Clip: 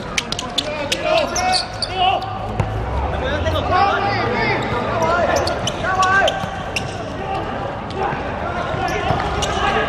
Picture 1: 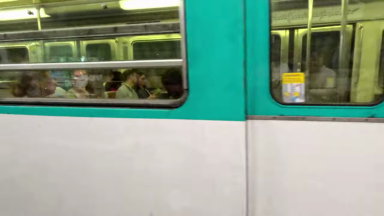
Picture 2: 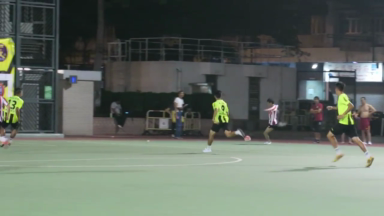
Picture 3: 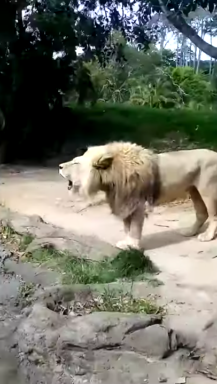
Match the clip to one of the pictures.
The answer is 2